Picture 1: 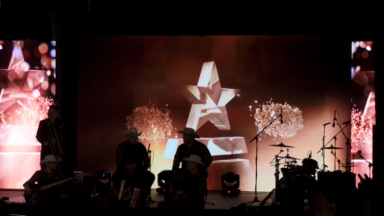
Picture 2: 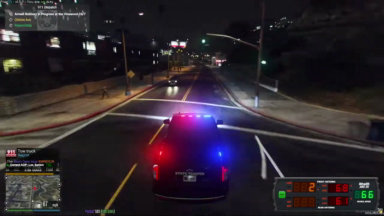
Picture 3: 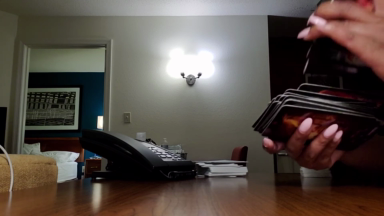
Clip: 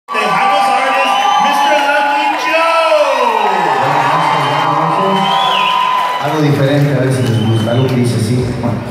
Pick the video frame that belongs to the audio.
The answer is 1